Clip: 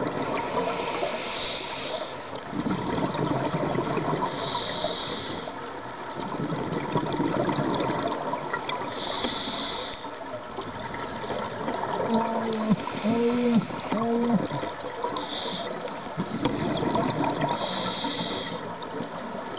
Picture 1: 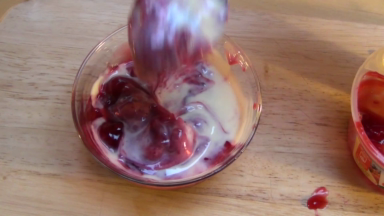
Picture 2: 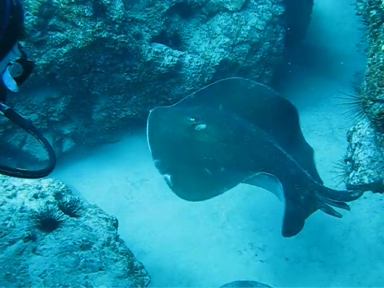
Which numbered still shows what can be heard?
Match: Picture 2